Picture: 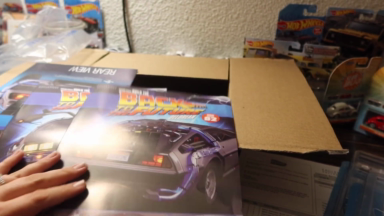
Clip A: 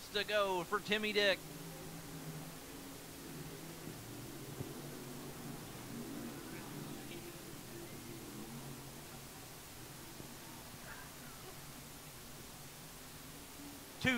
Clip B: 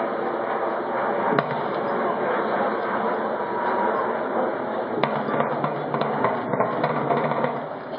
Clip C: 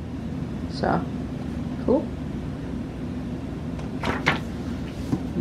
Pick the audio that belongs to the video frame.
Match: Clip C